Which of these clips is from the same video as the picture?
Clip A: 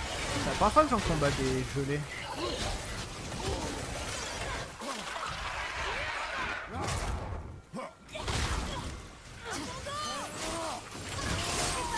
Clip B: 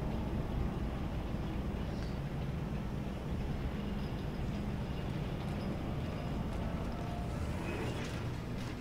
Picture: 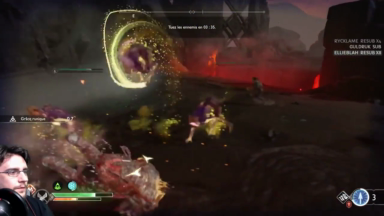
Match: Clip A